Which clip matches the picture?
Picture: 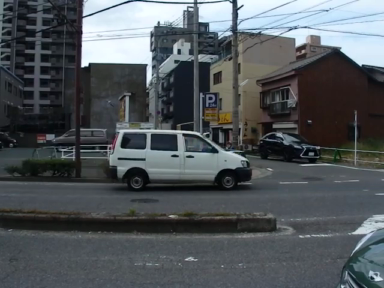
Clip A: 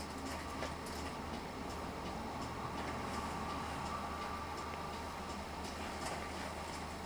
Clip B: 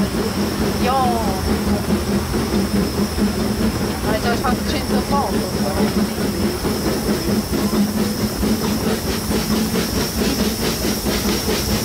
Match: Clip A